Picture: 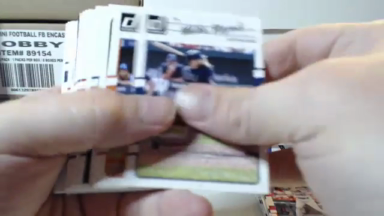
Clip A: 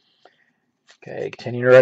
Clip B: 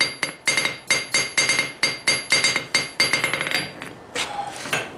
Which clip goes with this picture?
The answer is A